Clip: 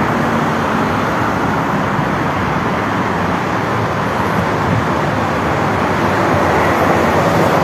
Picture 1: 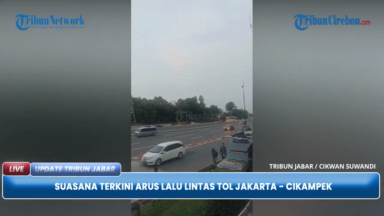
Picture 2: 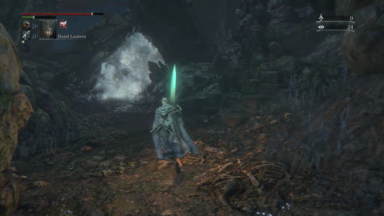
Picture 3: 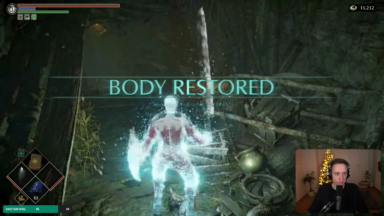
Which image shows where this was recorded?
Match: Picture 1